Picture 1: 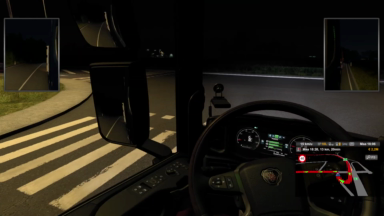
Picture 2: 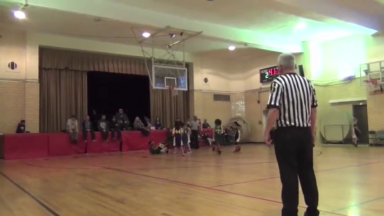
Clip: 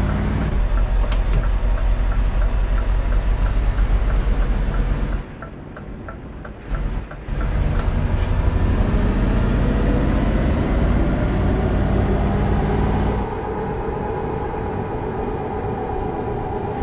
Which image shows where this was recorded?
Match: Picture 1